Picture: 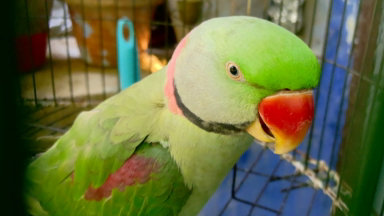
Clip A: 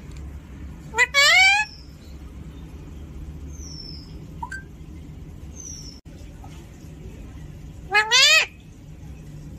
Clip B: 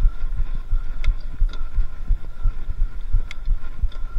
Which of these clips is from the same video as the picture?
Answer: A